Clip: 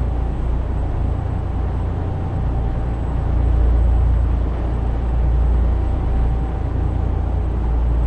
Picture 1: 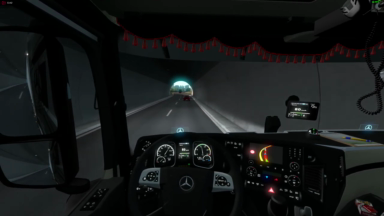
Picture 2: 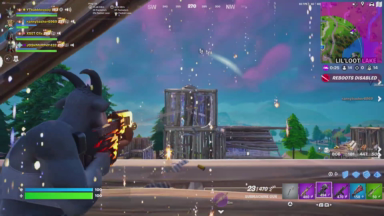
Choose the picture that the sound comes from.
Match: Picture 1